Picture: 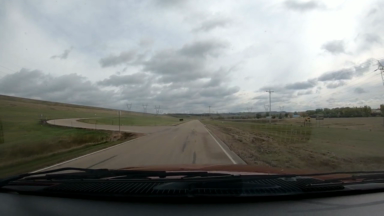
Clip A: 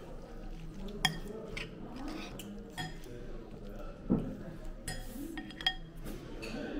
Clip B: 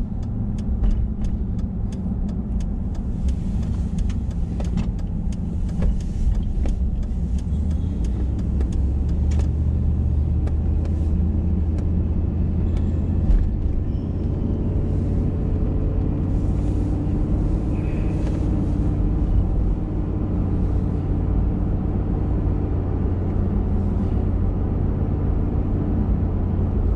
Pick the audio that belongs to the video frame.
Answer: B